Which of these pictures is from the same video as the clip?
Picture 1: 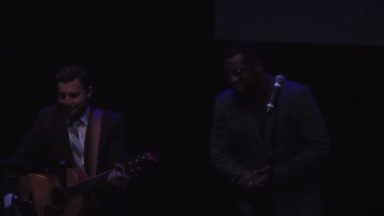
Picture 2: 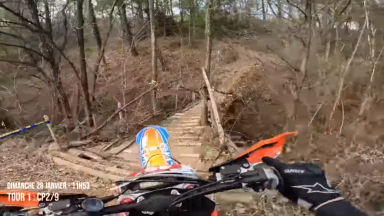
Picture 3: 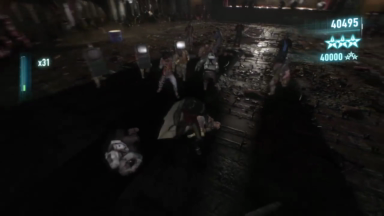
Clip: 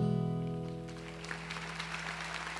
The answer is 1